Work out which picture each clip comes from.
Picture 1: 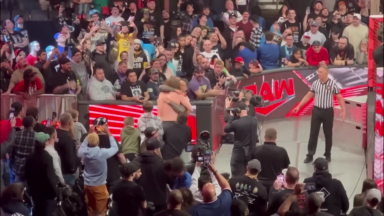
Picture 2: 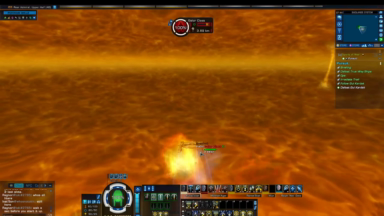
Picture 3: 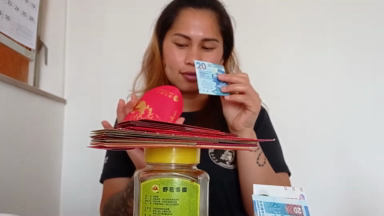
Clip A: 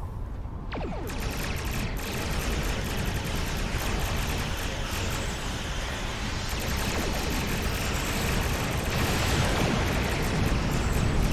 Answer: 2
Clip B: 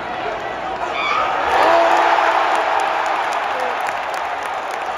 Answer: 1